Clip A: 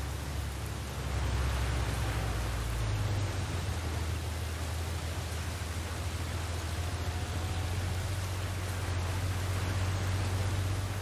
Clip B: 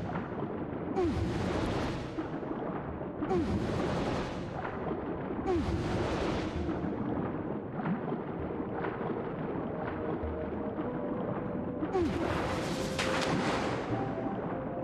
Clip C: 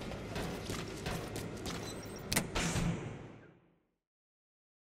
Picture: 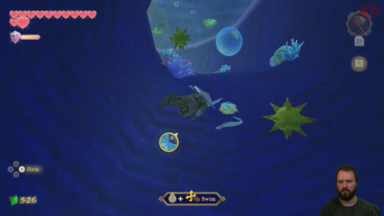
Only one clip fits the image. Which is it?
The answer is B